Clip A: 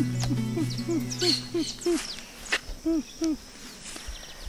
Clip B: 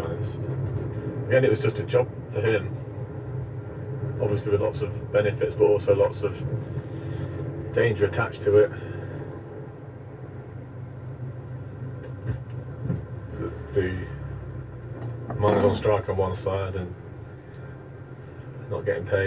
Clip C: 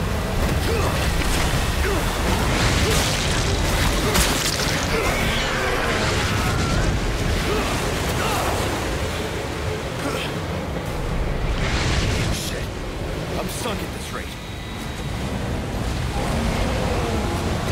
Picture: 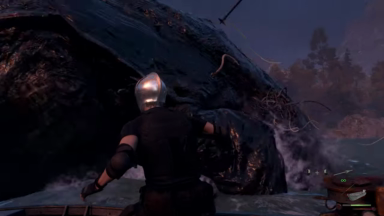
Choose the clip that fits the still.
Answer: C